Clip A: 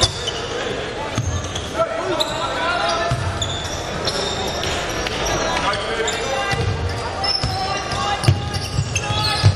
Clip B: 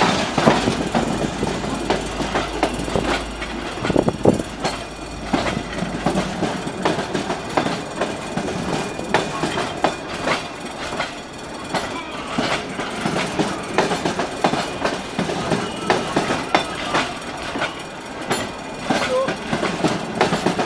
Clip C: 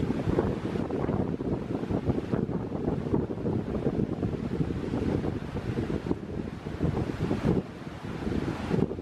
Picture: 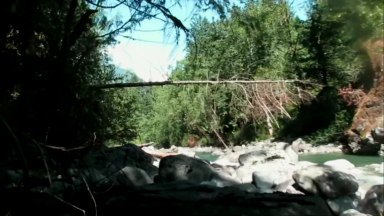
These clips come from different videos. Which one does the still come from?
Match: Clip C